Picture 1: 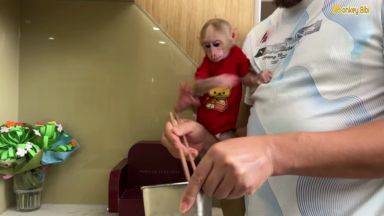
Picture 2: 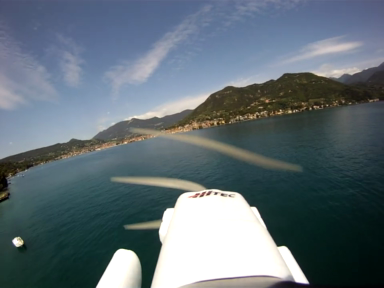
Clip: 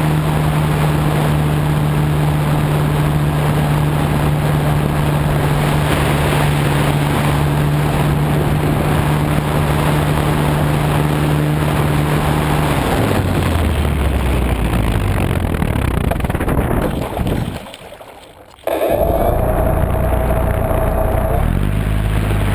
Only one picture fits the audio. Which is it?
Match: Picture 2